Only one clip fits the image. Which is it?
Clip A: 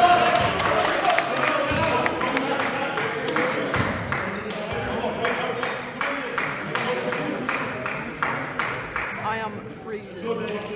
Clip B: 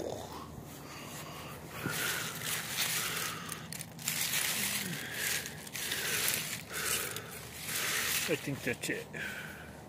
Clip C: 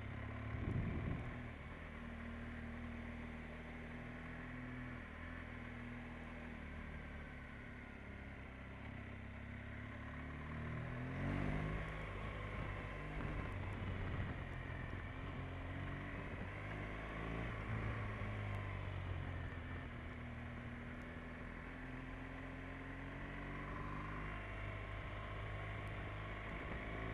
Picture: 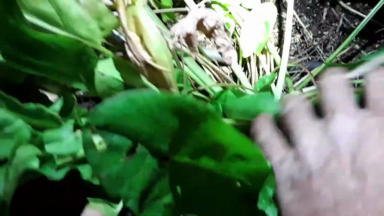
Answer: B